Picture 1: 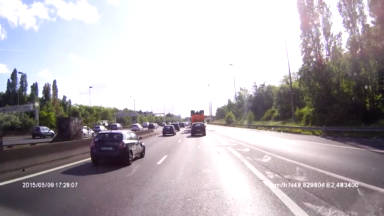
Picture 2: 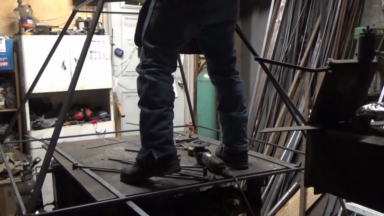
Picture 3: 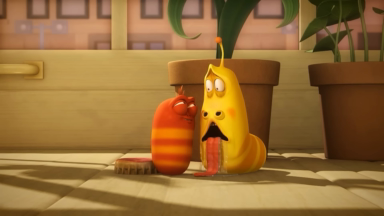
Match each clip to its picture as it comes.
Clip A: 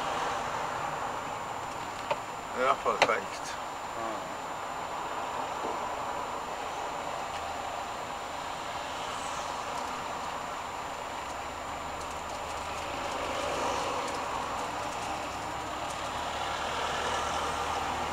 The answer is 1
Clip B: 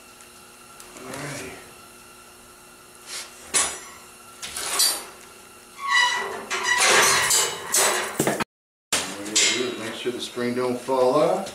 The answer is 2